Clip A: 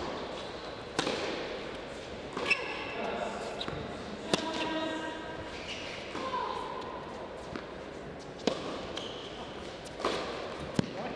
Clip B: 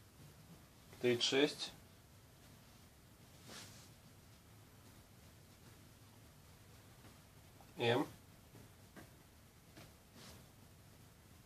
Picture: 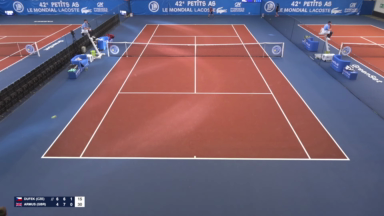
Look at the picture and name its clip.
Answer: A